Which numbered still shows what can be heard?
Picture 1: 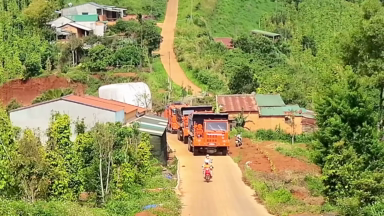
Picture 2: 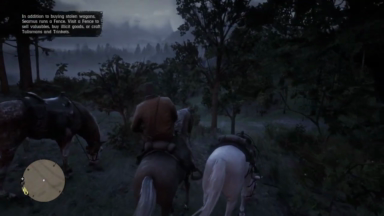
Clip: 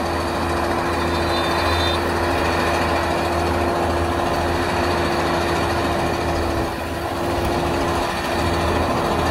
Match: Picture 1